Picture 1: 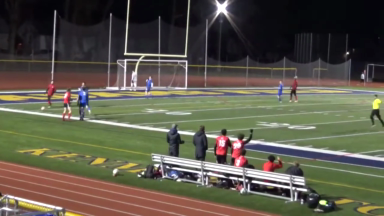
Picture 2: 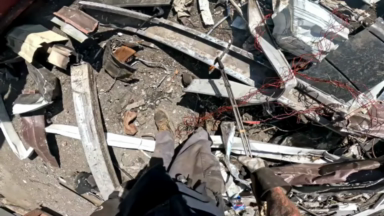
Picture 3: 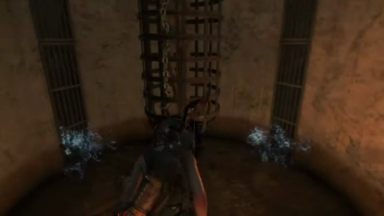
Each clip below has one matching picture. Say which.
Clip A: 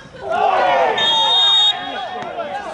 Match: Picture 1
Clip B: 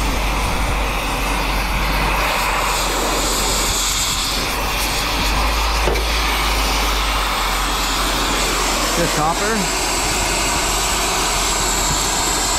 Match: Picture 2